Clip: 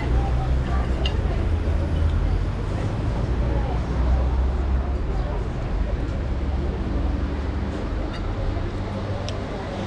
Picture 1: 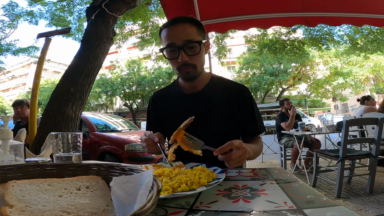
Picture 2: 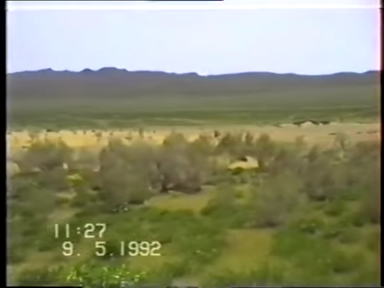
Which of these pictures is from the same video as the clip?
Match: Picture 1